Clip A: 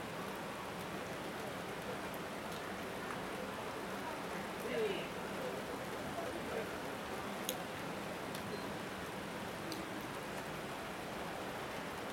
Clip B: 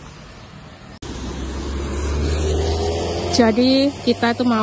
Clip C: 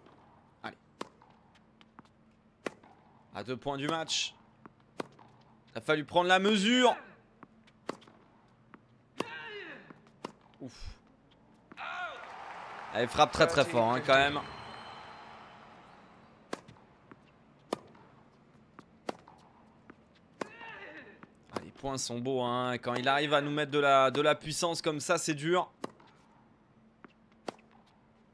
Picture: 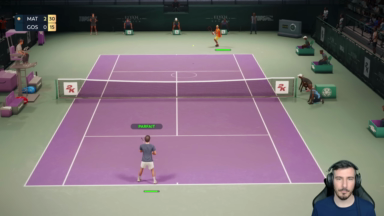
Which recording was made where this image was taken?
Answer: C